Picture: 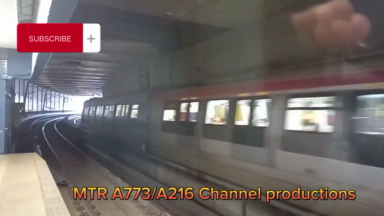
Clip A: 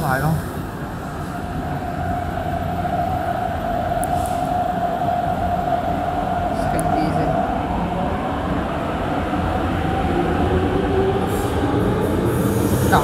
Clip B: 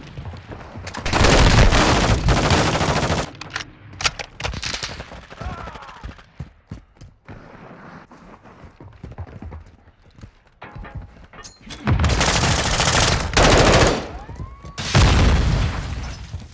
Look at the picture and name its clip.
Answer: A